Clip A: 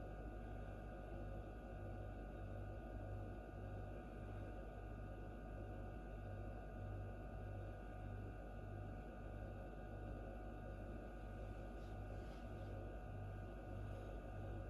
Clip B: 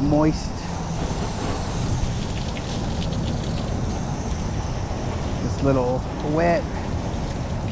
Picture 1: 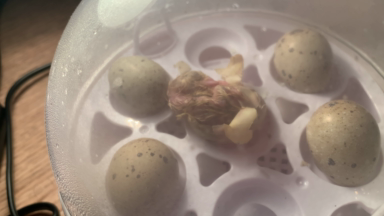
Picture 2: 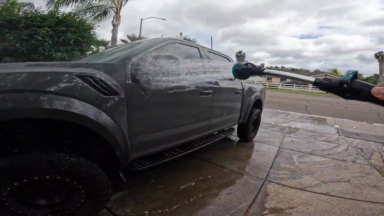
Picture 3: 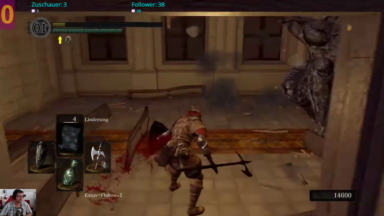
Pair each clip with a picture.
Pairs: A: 1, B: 2